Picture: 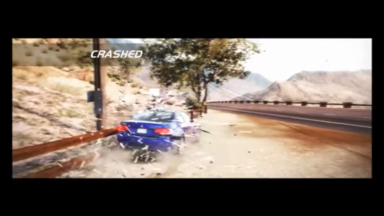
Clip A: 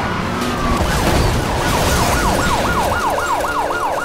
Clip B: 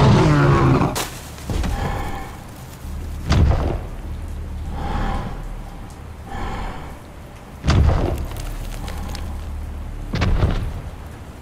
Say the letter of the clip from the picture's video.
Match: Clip A